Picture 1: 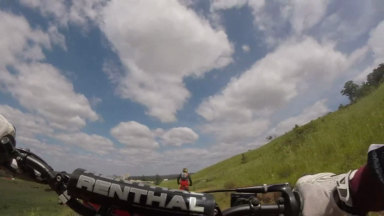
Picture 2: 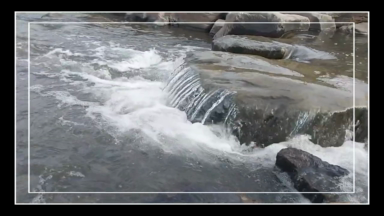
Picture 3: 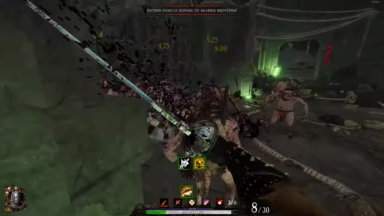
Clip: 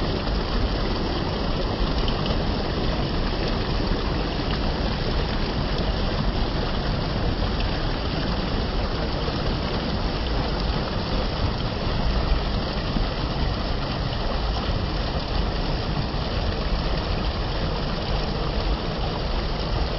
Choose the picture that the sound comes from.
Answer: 2